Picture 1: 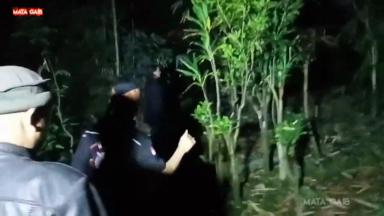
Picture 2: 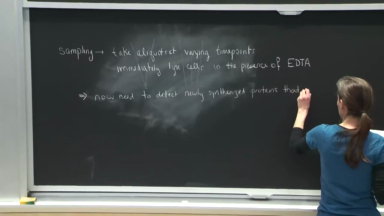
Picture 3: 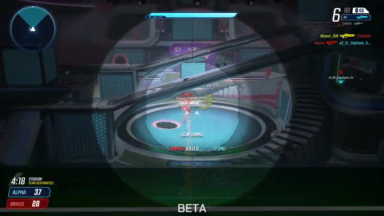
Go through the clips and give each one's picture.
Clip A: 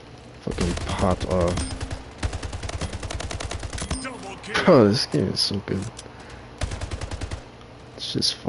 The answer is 3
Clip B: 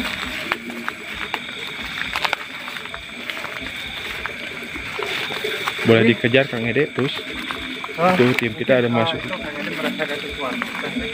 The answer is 1